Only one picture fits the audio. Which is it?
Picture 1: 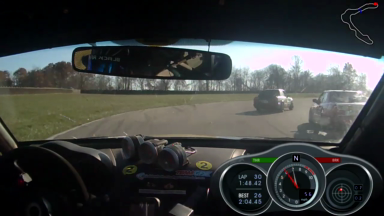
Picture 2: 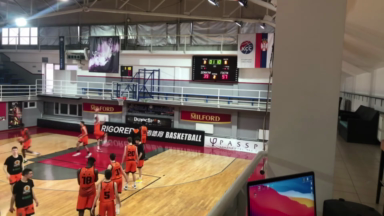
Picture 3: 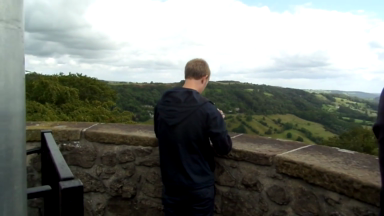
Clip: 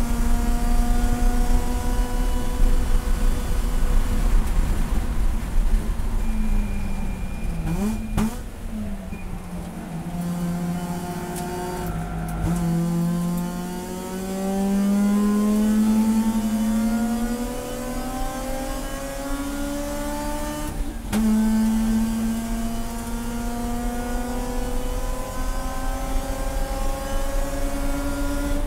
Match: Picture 1